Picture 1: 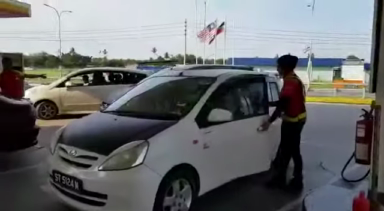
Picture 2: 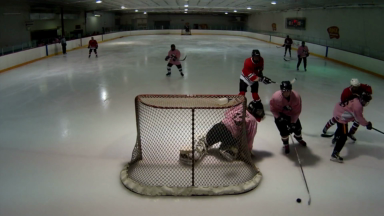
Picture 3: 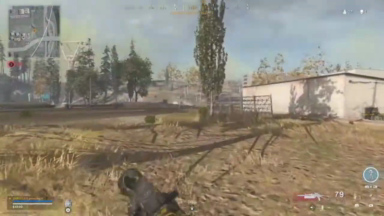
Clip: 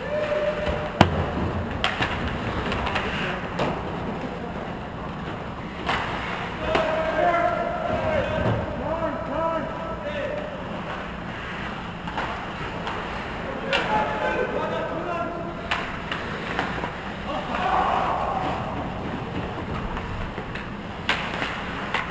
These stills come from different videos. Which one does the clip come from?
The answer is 2